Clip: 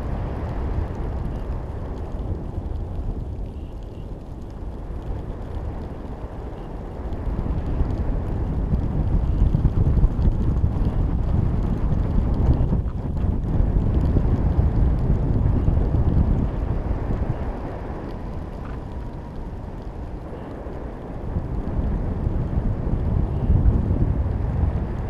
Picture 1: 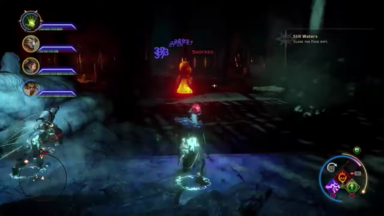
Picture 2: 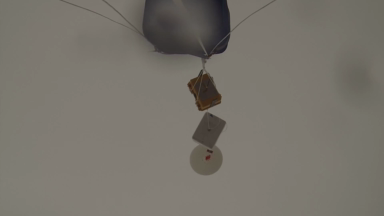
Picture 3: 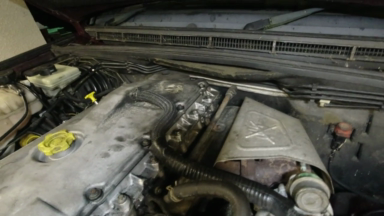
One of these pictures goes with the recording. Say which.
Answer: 2